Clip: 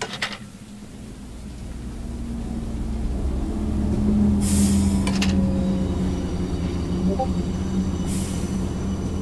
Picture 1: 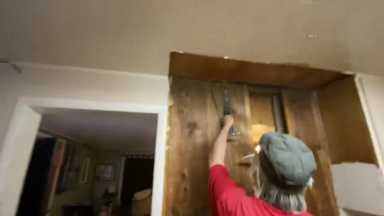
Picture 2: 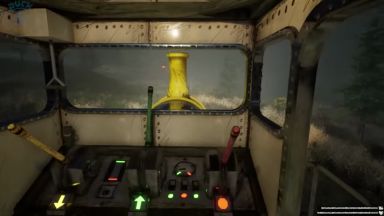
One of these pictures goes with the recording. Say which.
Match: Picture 2